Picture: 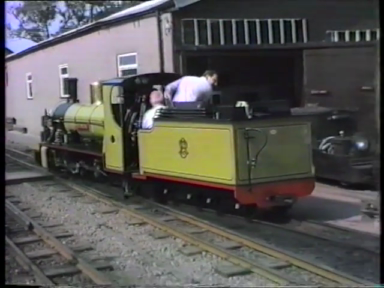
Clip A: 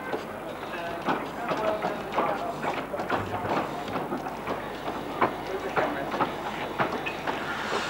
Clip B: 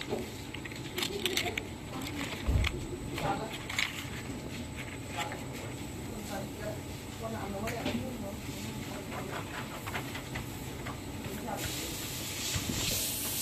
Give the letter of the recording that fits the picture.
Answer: A